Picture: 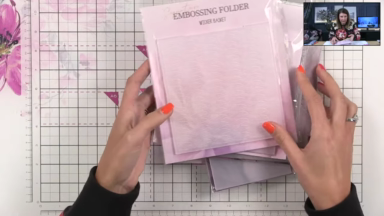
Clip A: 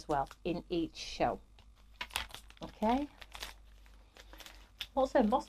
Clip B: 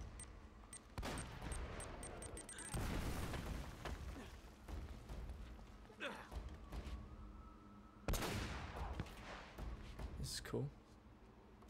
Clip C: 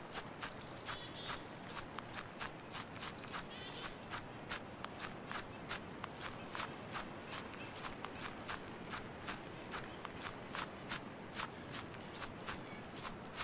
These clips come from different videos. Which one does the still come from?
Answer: A